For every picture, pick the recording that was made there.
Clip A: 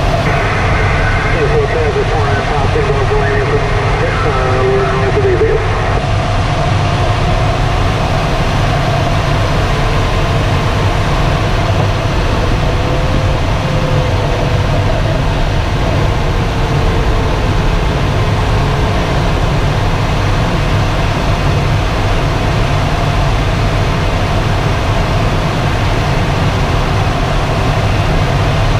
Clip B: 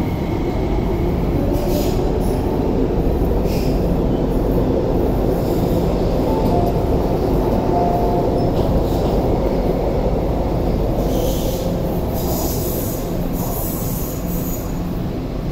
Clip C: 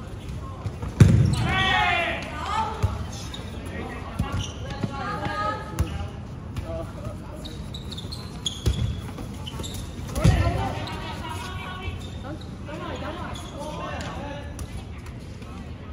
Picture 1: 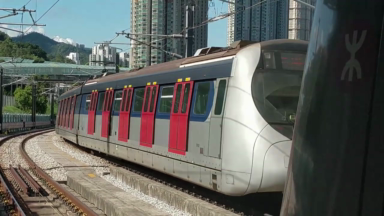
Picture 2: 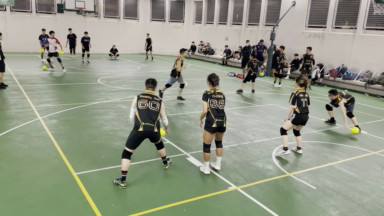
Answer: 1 B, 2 C